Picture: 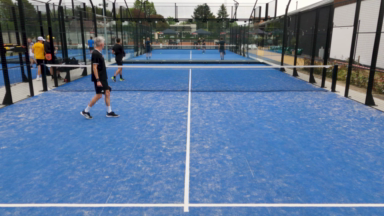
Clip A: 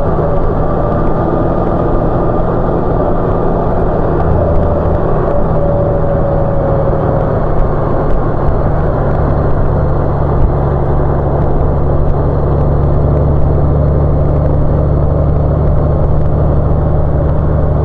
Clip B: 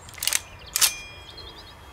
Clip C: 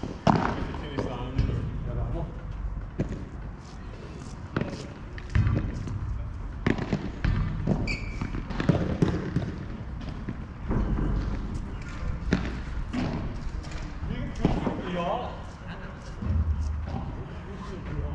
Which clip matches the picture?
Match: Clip C